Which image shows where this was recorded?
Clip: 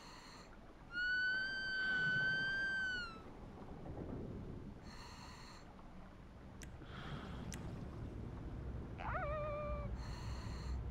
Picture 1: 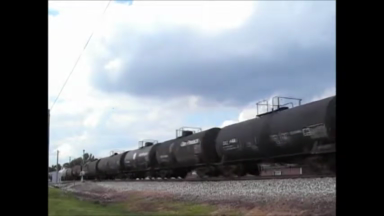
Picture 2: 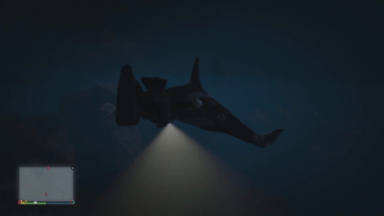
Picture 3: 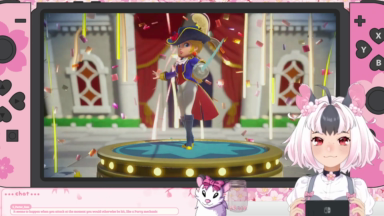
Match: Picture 2